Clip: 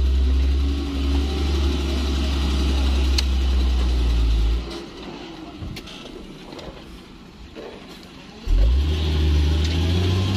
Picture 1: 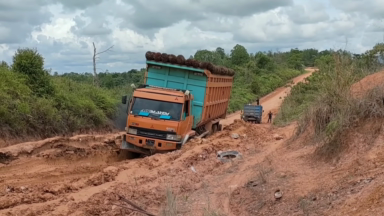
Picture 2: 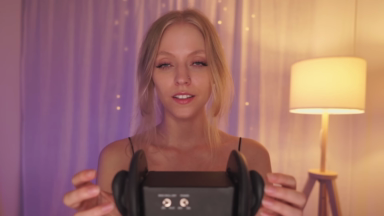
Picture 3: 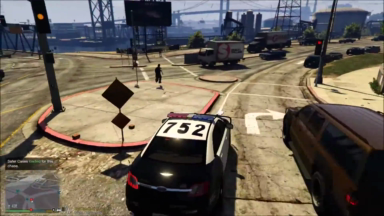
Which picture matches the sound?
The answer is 1